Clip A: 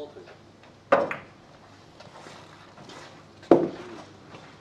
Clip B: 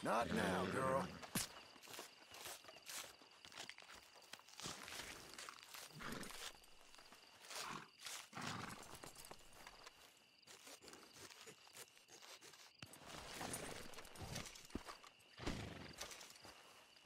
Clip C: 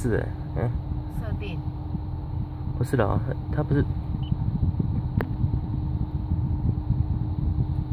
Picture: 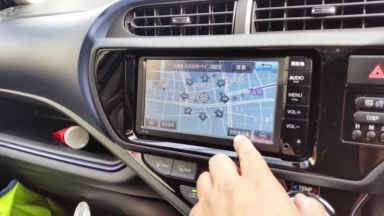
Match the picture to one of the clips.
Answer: C